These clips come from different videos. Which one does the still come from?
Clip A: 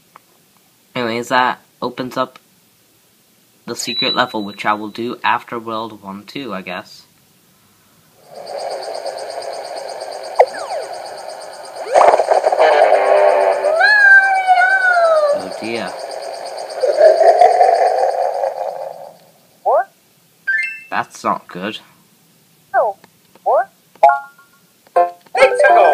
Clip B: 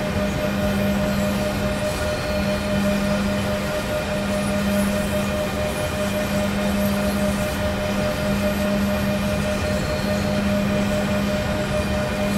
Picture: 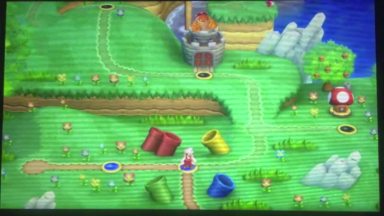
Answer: A